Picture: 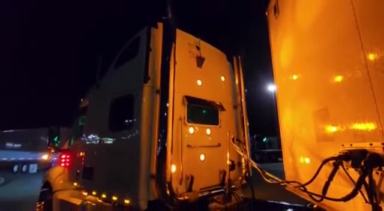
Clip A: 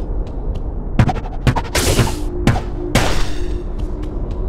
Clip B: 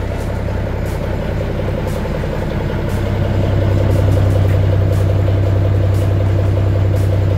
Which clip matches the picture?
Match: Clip B